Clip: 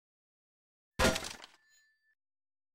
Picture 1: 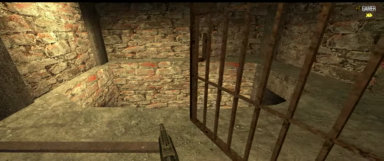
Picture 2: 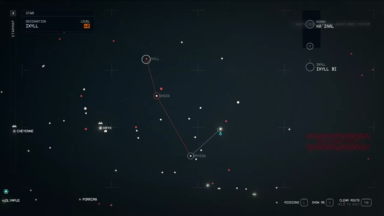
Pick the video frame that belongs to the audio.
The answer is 1